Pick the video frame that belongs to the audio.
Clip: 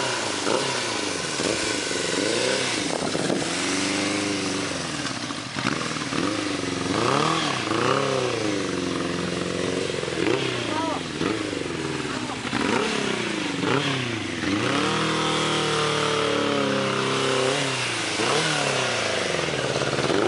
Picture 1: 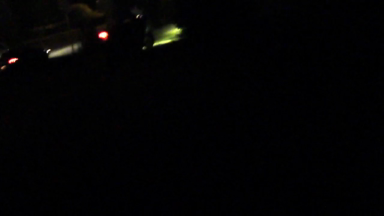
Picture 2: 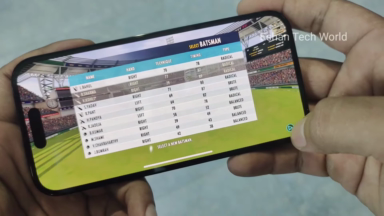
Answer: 1